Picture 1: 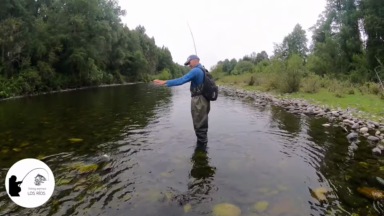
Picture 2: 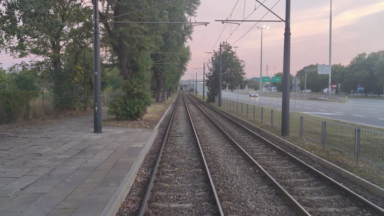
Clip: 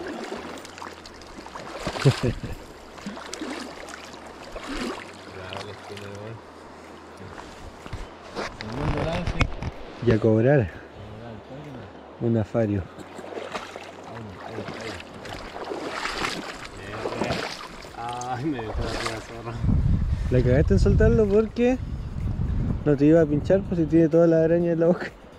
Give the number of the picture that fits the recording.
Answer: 1